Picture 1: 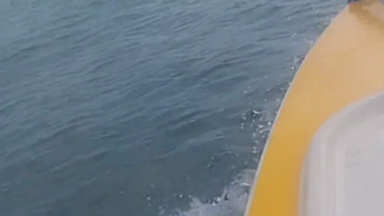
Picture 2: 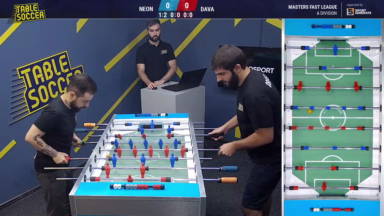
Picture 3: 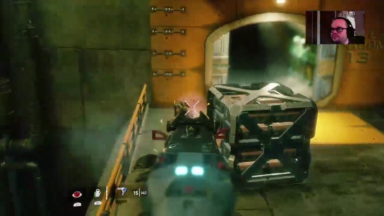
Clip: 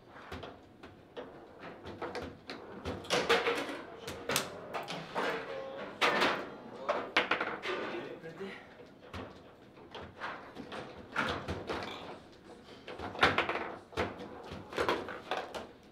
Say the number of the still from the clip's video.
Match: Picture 2